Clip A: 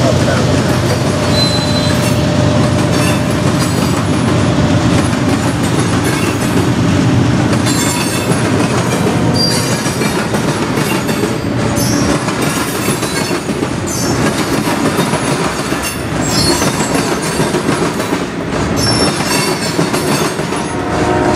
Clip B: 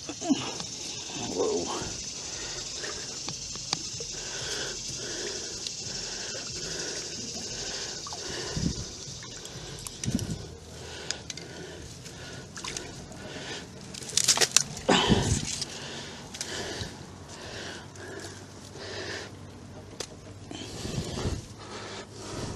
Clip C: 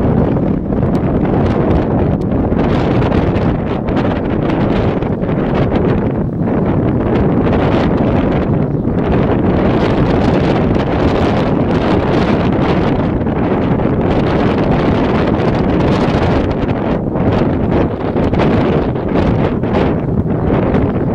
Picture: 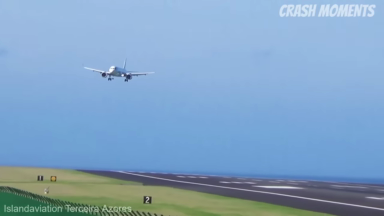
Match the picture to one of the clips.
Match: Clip C